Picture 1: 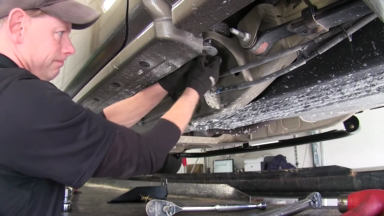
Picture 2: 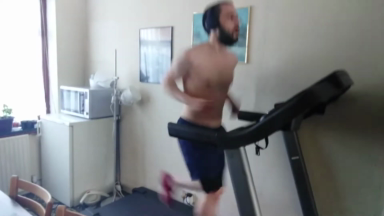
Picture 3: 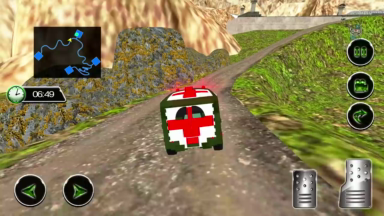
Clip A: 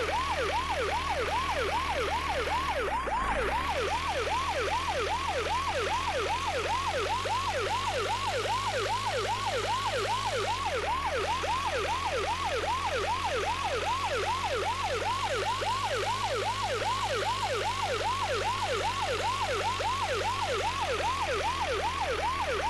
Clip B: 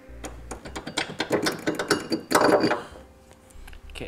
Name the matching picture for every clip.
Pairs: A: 3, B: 1